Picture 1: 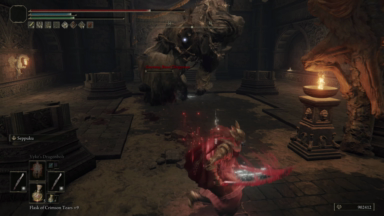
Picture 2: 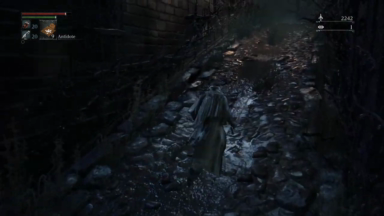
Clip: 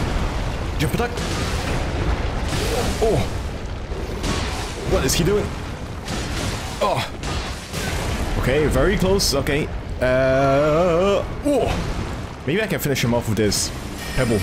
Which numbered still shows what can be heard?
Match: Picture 1